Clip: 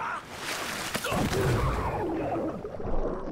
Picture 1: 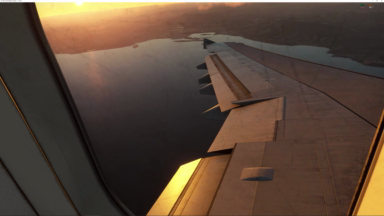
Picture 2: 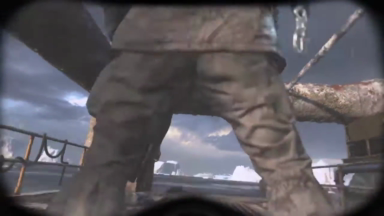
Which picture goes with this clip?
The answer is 2